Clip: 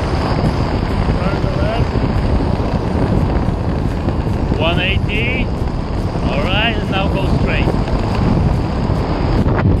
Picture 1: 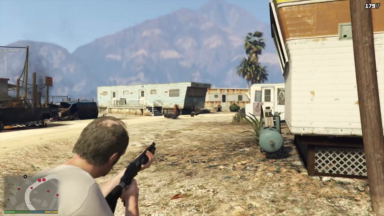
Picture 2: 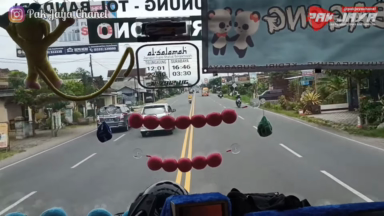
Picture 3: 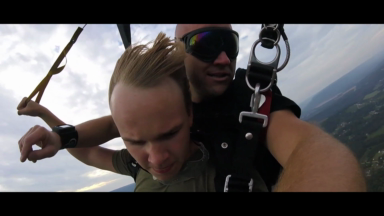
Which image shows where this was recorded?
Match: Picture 3